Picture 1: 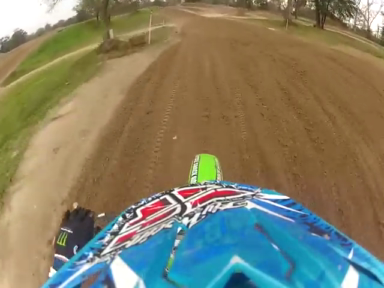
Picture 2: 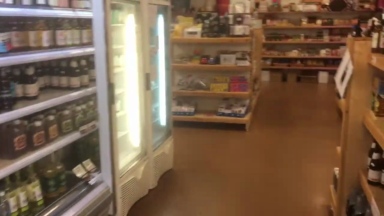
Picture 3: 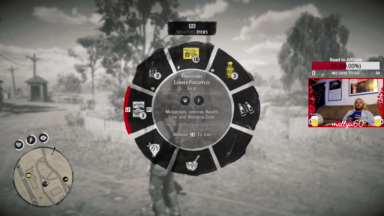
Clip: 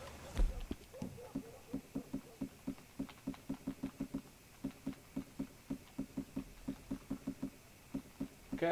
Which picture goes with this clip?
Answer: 3